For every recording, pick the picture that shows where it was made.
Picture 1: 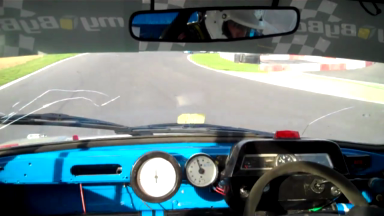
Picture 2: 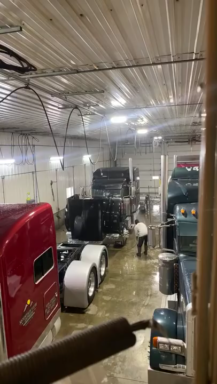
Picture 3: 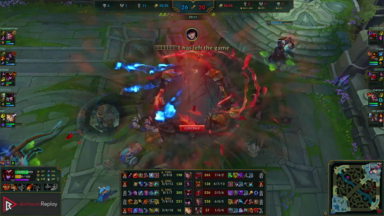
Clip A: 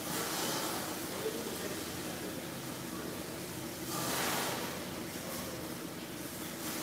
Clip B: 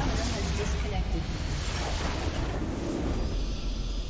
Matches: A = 2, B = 3